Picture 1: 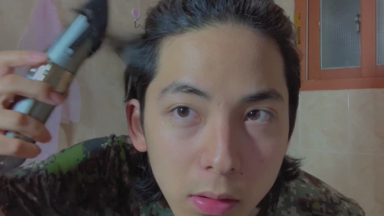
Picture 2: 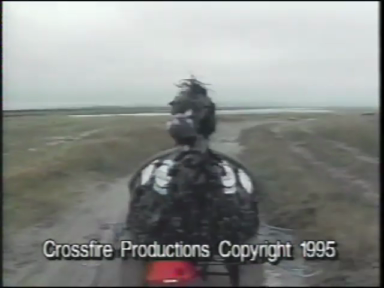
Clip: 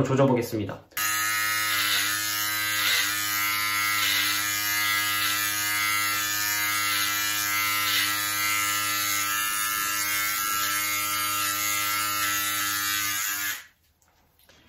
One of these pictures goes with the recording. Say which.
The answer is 1